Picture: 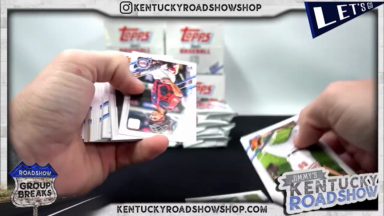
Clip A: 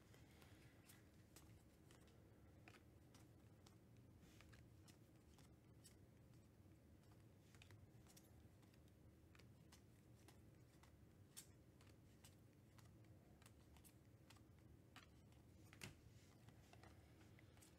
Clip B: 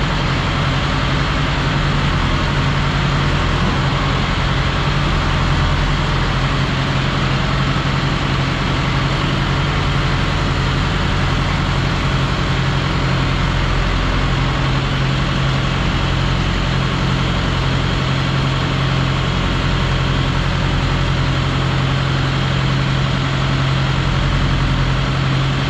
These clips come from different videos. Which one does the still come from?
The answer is A